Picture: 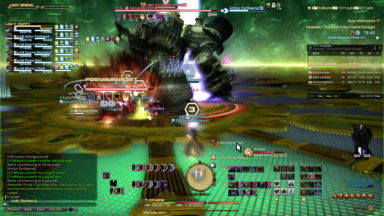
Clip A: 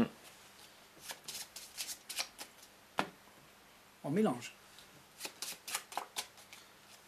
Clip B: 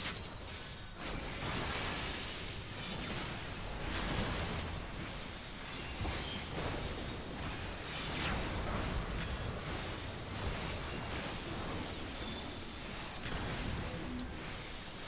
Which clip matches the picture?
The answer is B